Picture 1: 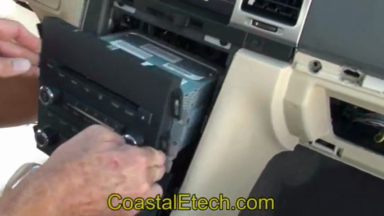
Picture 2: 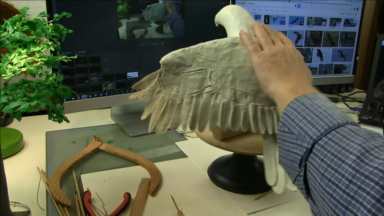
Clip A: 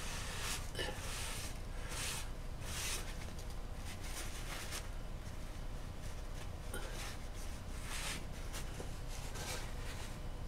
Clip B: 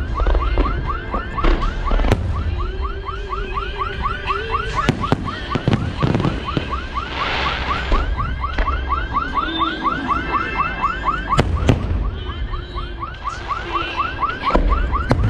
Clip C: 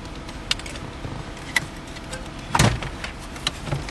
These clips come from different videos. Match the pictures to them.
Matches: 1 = C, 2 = A